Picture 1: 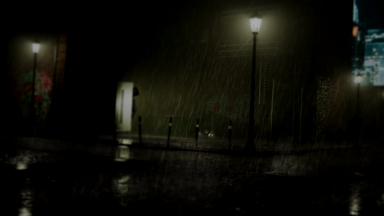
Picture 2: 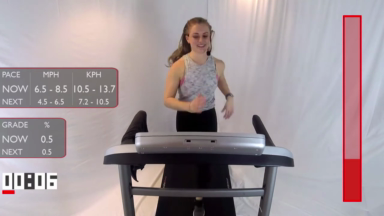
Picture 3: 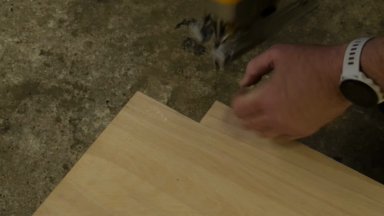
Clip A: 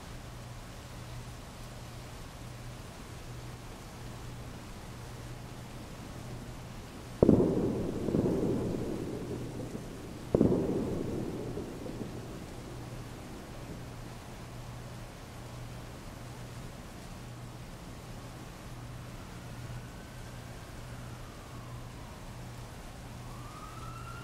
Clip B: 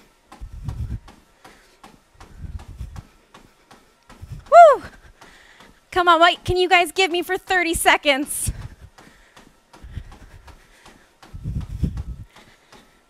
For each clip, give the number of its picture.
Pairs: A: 1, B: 2